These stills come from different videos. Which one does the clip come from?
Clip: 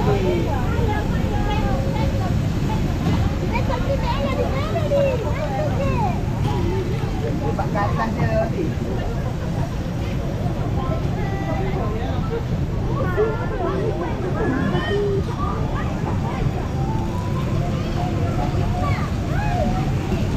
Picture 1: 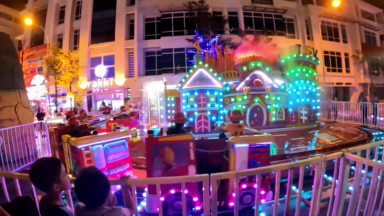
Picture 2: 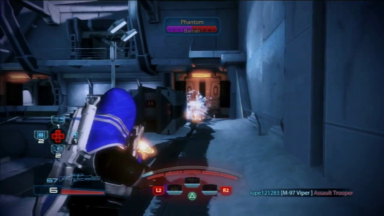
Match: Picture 1